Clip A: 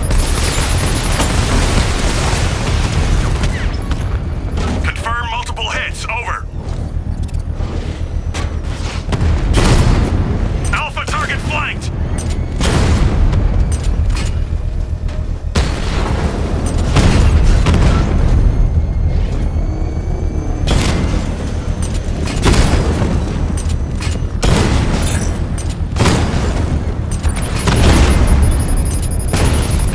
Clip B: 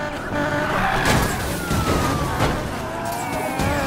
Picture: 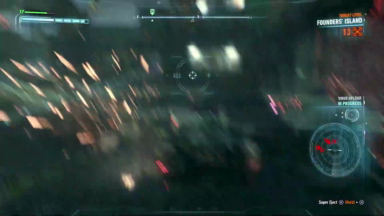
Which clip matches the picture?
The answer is A